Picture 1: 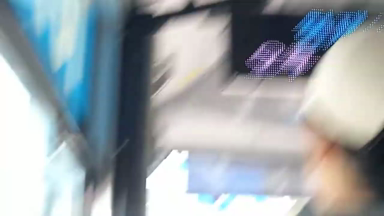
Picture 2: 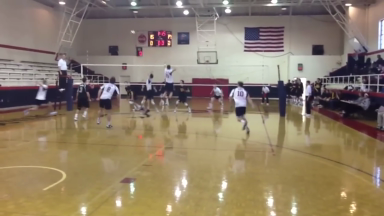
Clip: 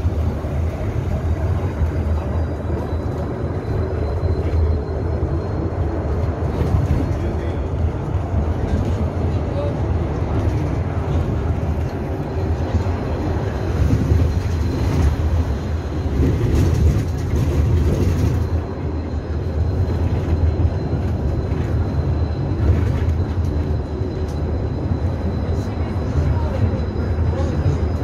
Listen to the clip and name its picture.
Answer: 1